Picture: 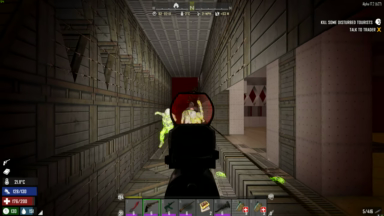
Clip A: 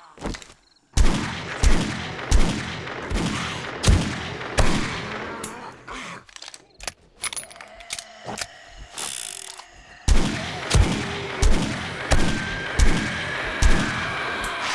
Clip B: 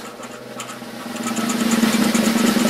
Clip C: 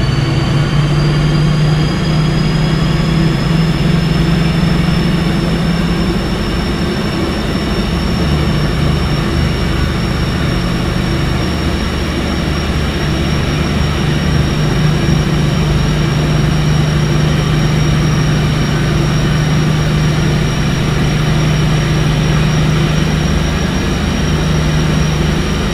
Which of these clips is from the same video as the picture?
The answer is A